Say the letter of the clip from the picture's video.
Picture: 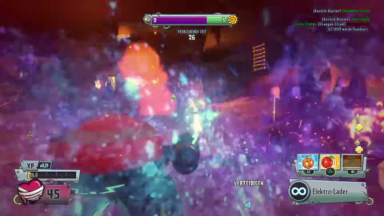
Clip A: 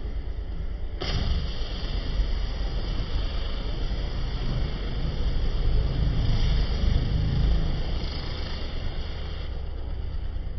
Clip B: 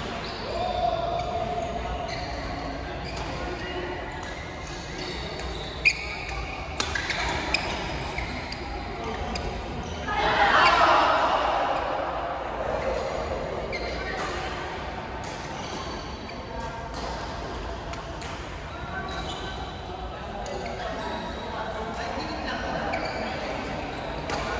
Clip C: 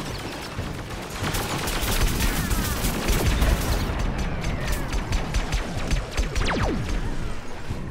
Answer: C